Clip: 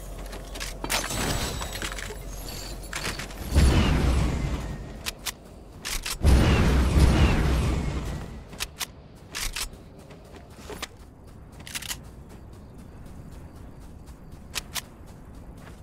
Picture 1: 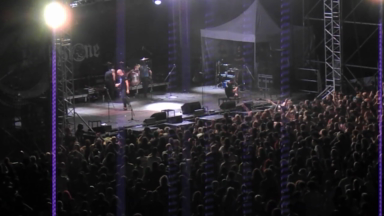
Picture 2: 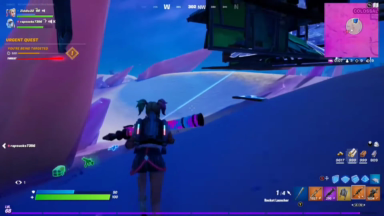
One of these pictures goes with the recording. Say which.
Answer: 2